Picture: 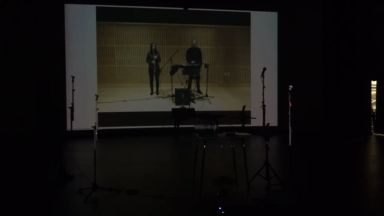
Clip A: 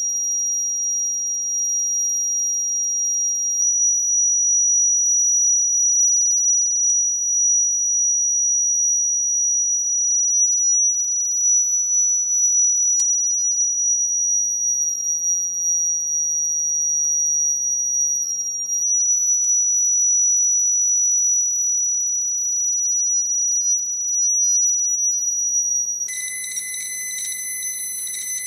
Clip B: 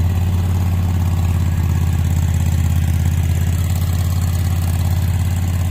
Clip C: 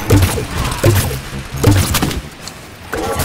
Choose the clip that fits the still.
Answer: A